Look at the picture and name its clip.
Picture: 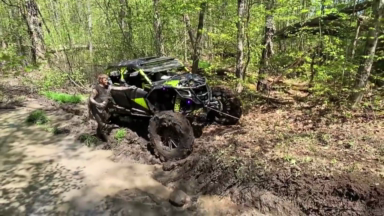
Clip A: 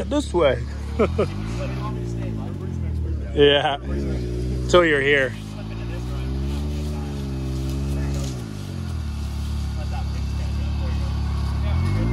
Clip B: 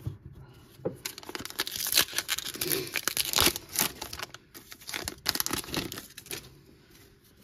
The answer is A